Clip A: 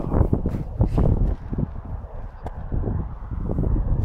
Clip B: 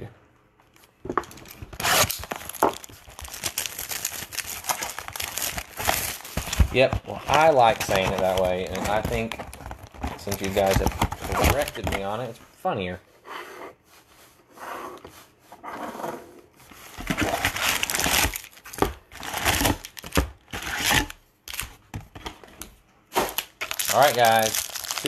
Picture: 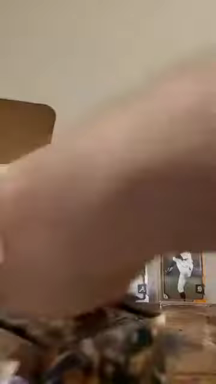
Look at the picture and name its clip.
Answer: B